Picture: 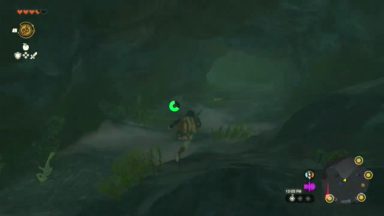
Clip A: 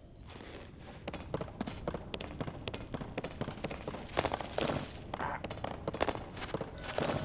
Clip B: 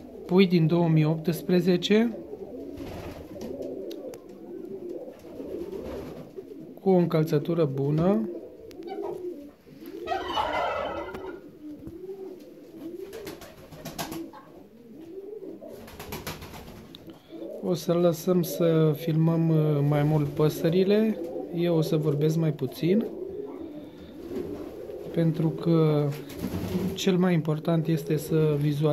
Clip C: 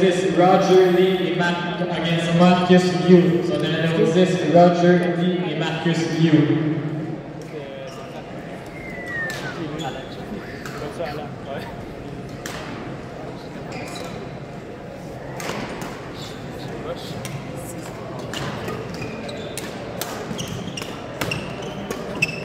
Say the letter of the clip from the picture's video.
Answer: A